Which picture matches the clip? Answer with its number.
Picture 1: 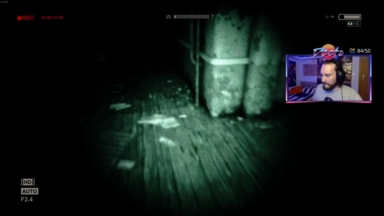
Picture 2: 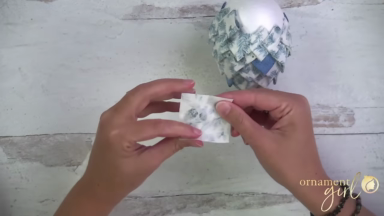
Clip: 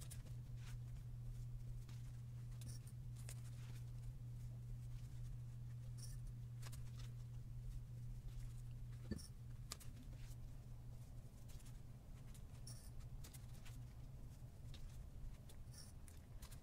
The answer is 2